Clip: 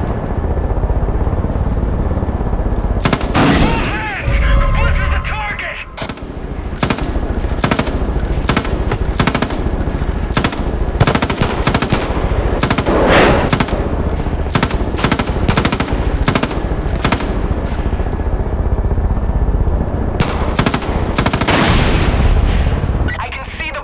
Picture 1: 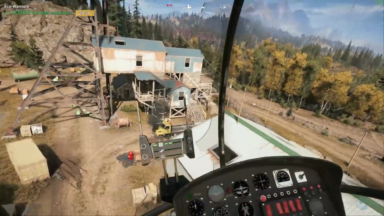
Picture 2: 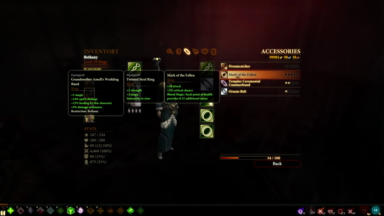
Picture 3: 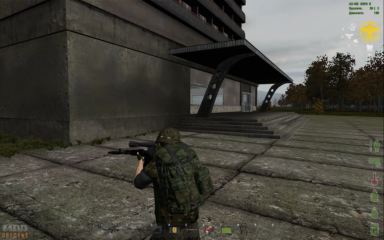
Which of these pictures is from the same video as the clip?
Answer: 1